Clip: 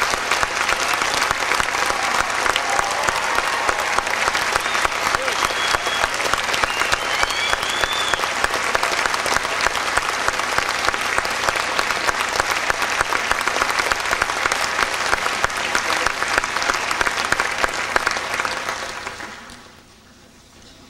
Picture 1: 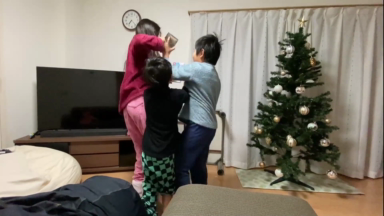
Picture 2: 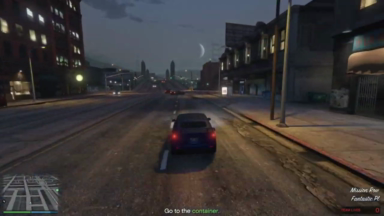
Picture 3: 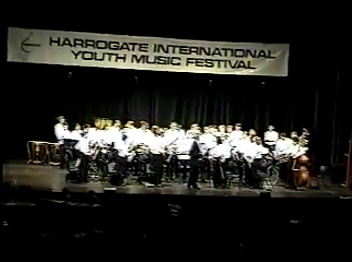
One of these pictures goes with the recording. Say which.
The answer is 3